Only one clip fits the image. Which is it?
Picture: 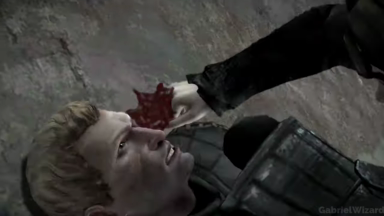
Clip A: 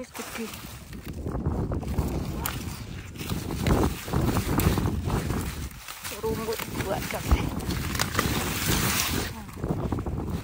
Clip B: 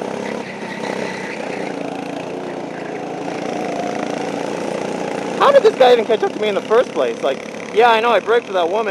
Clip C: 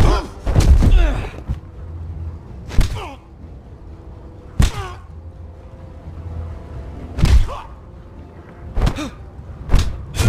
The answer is C